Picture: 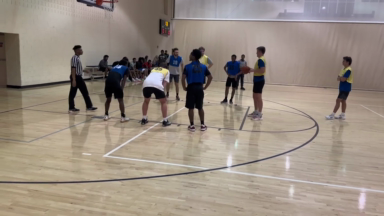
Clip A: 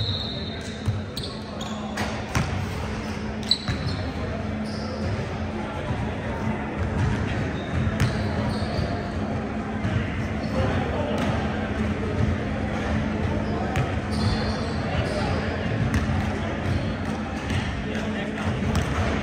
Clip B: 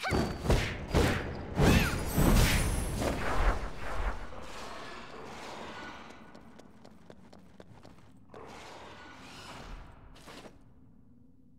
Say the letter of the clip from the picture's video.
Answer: A